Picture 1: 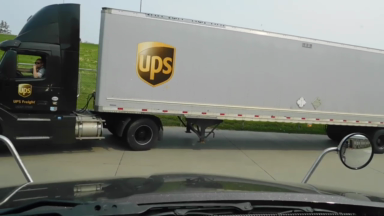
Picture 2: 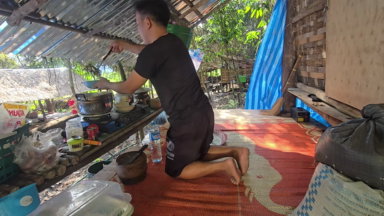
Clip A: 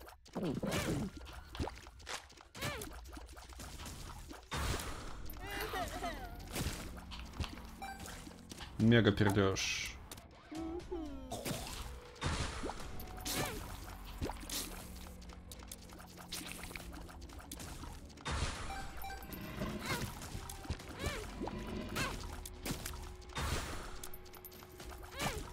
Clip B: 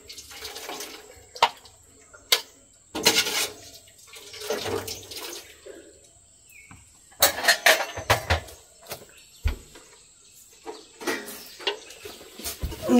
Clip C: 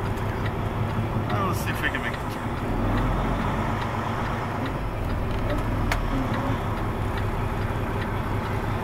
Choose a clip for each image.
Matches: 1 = C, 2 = B